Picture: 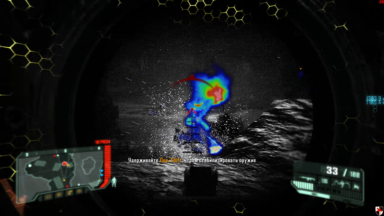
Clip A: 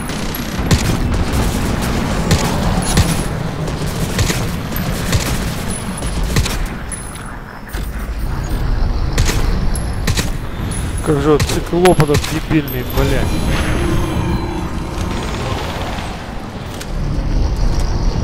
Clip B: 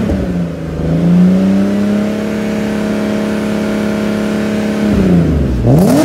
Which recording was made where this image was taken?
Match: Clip A